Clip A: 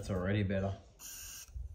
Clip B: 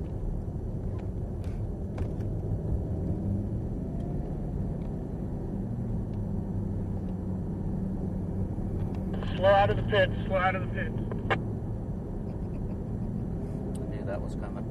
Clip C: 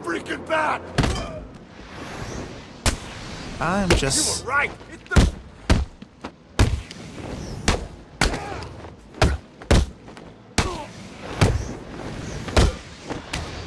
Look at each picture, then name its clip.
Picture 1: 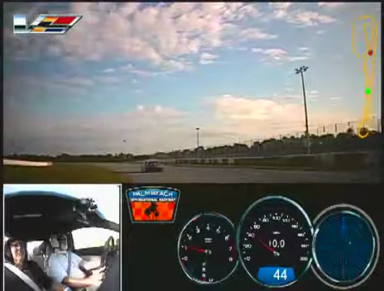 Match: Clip B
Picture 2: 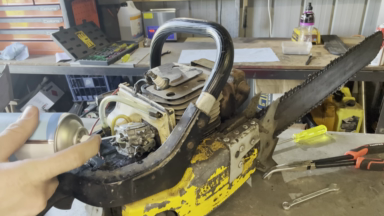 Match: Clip A